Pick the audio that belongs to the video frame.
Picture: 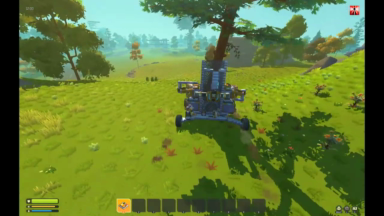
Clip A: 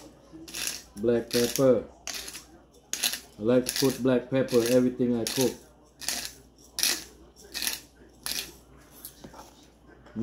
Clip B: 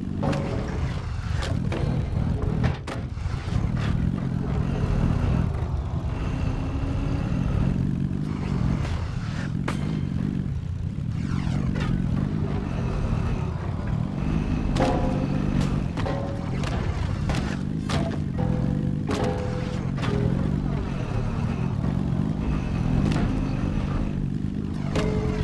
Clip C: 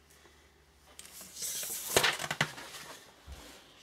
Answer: B